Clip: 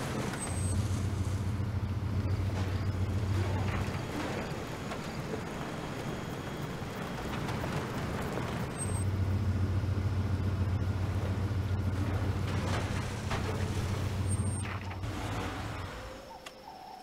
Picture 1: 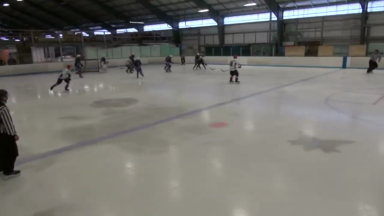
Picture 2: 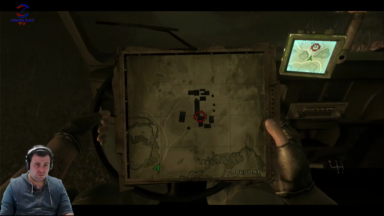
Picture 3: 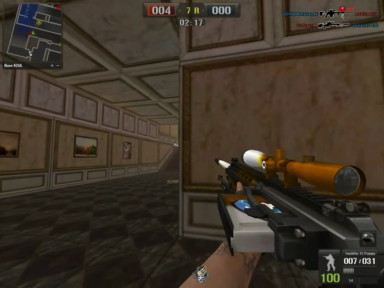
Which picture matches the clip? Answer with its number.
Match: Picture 2